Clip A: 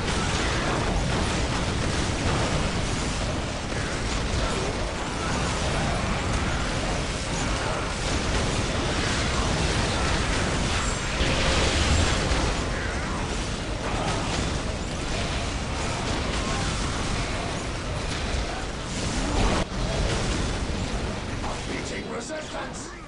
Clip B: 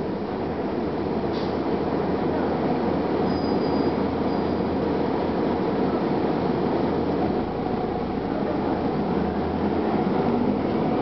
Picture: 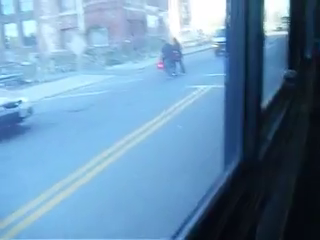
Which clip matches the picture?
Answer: B